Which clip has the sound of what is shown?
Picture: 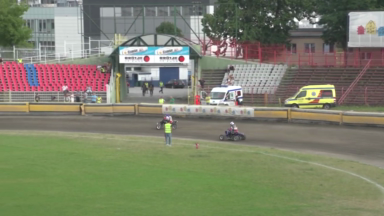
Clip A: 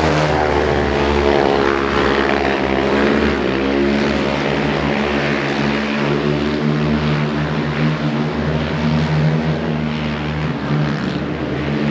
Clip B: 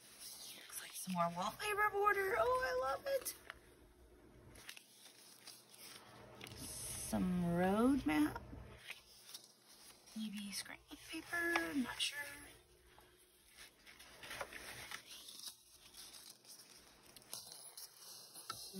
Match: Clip A